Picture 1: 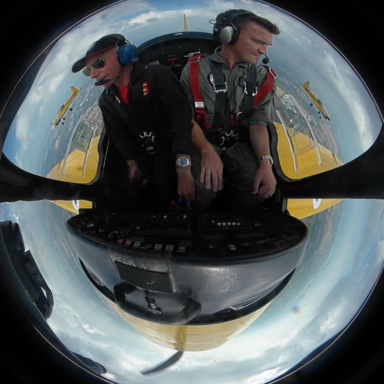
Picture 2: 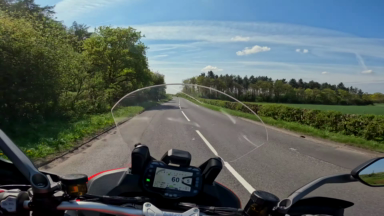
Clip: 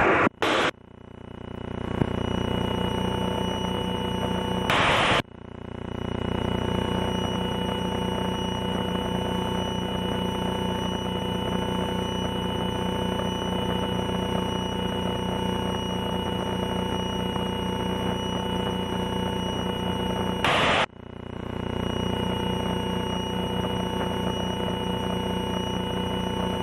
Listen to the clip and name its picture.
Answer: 1